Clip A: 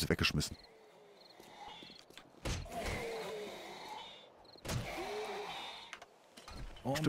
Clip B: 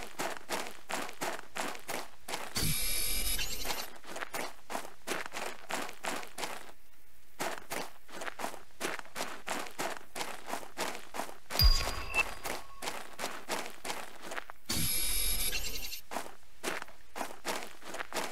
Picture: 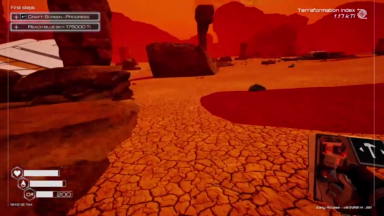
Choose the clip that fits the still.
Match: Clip B